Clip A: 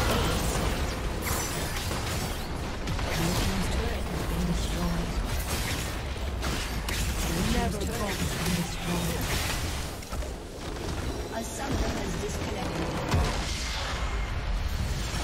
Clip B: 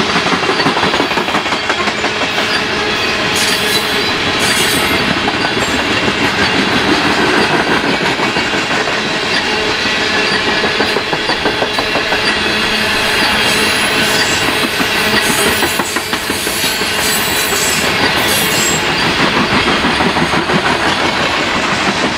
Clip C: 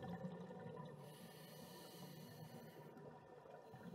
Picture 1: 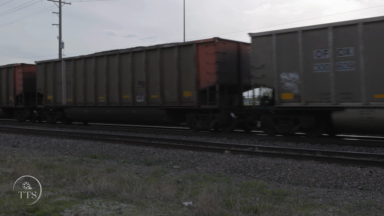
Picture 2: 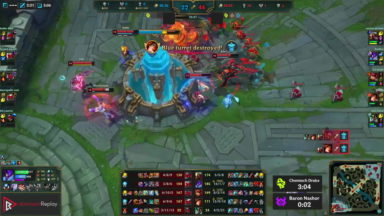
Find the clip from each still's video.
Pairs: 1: B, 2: A